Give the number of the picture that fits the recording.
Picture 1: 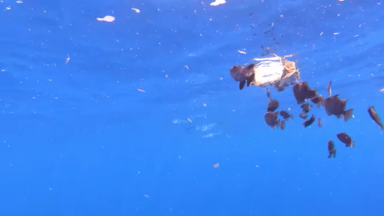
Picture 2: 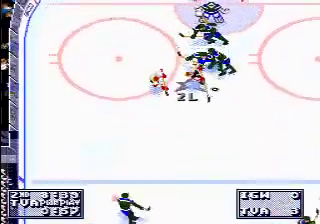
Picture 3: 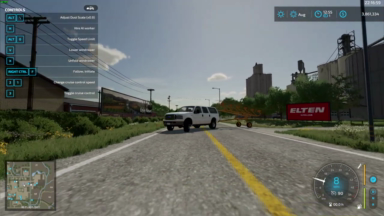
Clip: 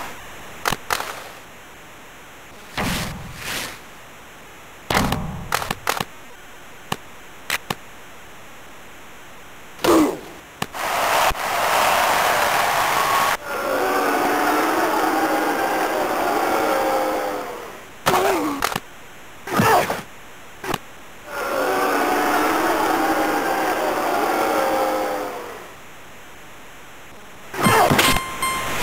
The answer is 2